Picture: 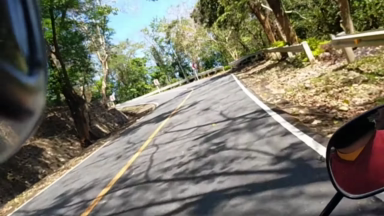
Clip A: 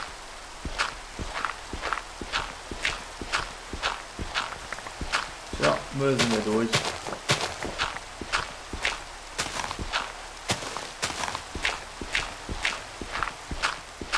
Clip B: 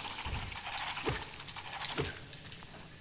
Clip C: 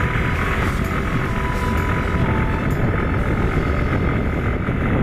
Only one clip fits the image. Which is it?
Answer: C